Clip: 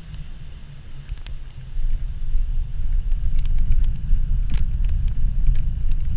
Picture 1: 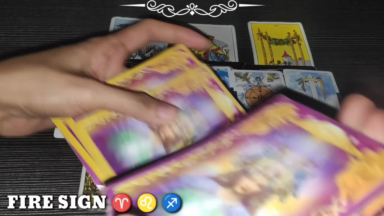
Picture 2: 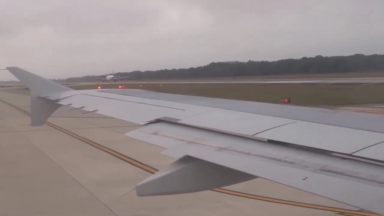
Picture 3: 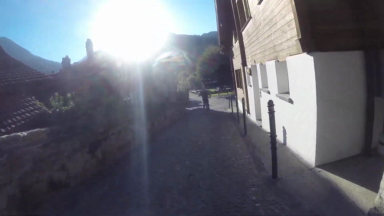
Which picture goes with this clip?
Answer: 3